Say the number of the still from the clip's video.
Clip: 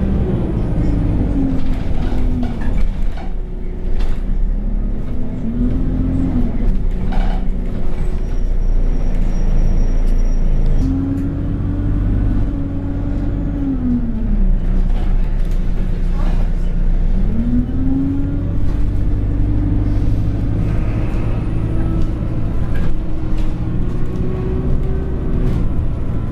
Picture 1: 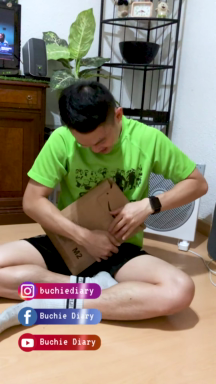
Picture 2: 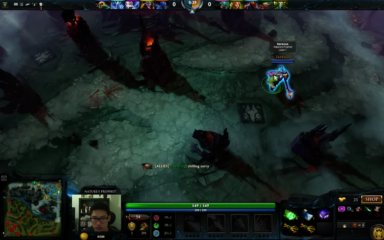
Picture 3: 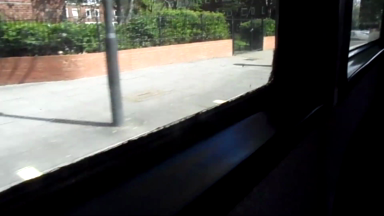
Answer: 3